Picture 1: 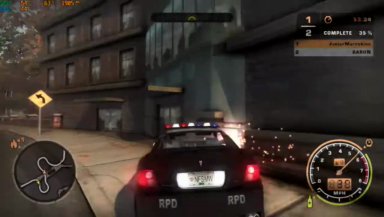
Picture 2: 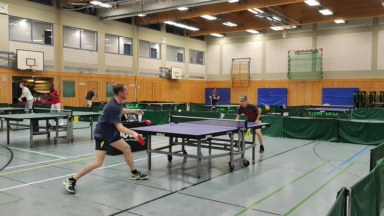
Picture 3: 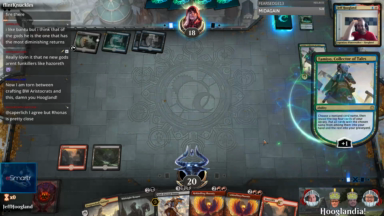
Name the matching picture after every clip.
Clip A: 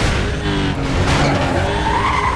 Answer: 1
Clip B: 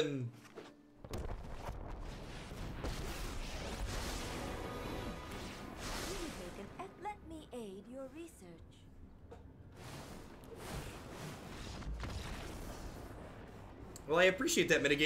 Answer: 3